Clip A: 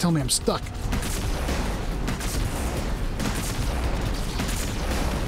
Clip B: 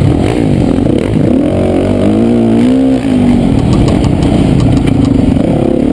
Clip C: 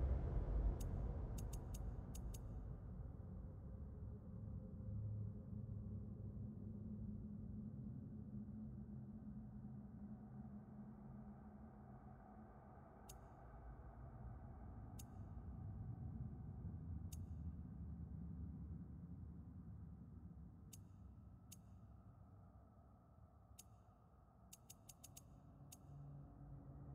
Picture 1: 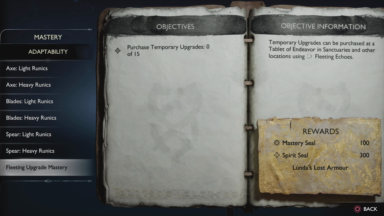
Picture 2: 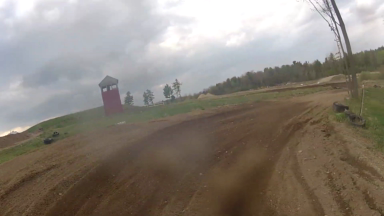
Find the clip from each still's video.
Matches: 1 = C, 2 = B